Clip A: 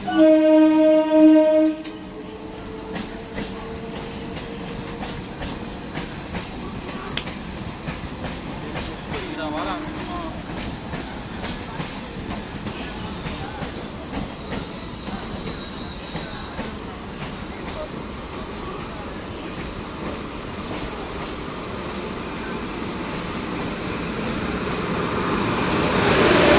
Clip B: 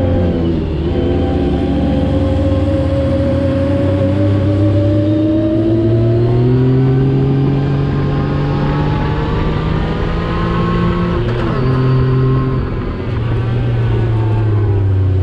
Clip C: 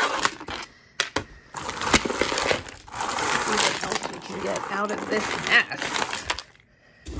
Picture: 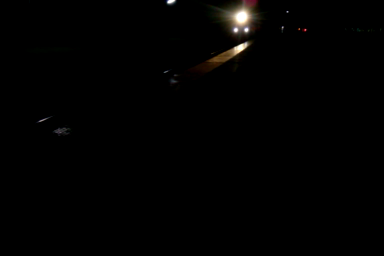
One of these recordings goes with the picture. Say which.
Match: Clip A